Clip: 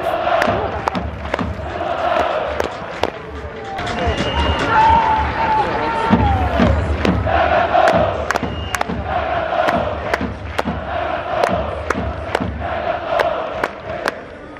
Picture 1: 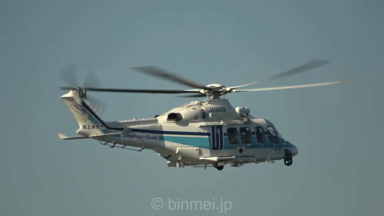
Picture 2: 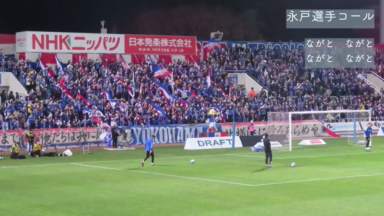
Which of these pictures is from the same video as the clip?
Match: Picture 2